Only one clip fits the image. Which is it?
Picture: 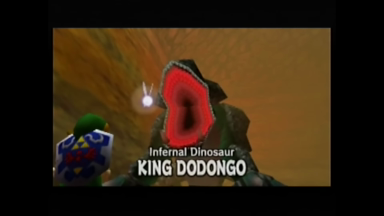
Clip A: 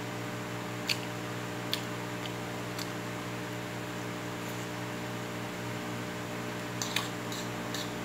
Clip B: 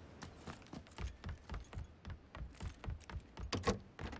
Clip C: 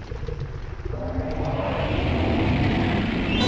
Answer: C